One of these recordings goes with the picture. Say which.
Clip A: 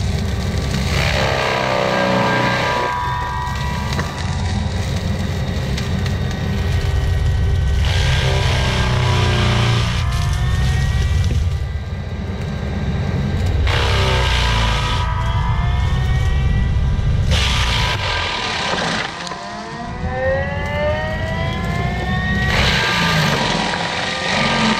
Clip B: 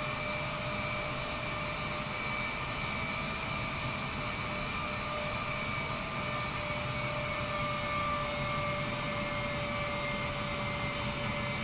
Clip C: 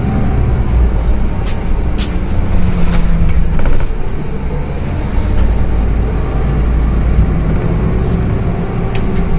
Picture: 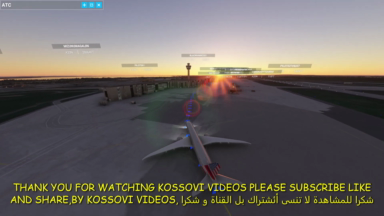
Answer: B